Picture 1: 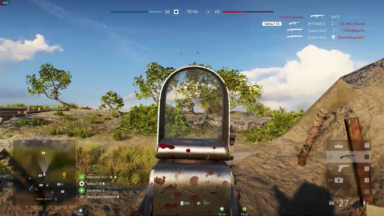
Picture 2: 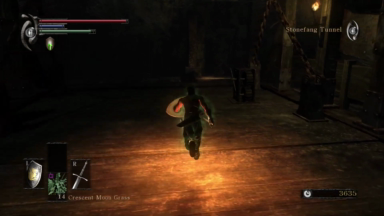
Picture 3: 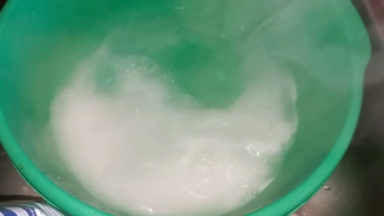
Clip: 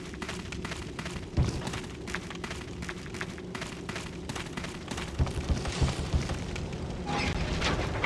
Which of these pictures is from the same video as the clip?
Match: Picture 2